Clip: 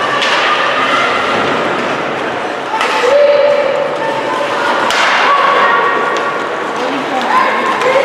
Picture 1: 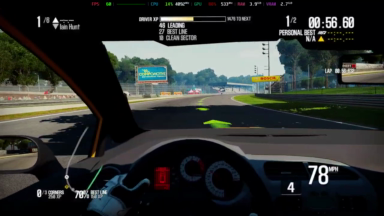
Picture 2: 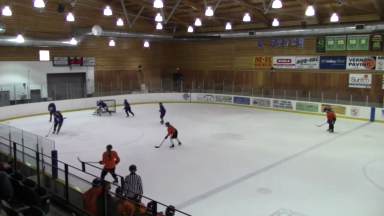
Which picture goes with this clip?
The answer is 2